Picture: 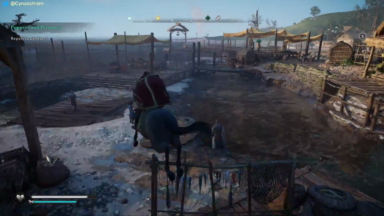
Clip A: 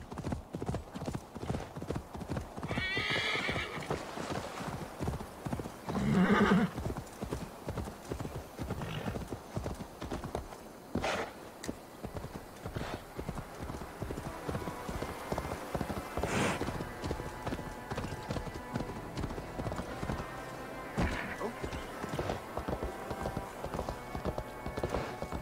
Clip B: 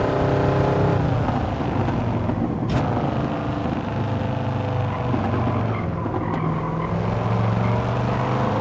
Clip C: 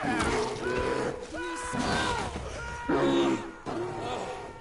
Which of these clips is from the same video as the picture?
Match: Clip A